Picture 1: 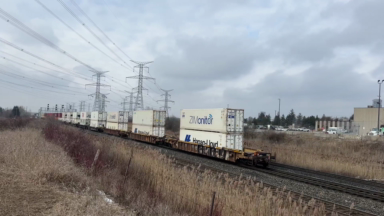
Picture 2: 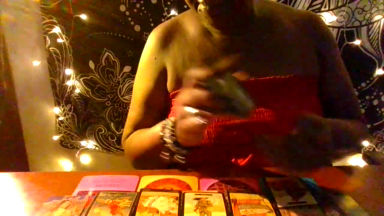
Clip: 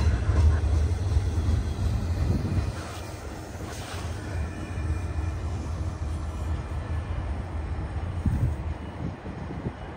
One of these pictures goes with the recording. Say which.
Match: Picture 1